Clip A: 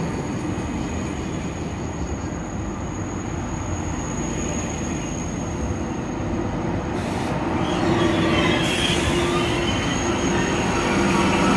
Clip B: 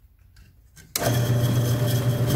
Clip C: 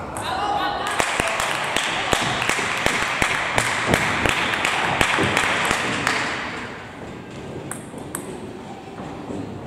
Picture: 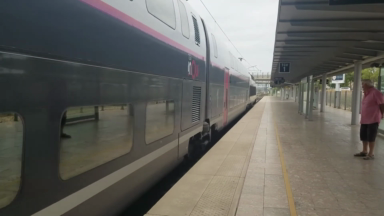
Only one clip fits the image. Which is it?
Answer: A